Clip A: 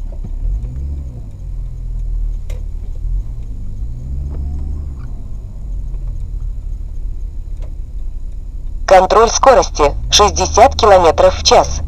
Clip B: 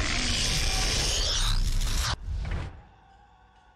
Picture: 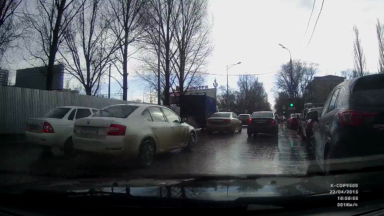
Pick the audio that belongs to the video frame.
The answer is A